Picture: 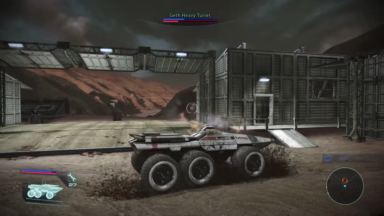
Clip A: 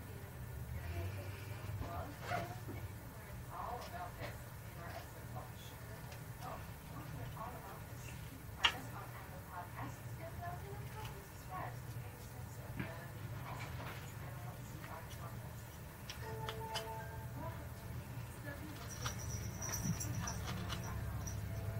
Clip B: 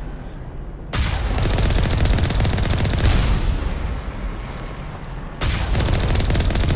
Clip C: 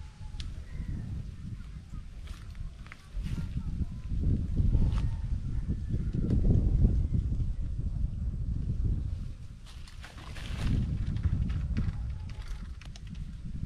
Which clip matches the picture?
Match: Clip B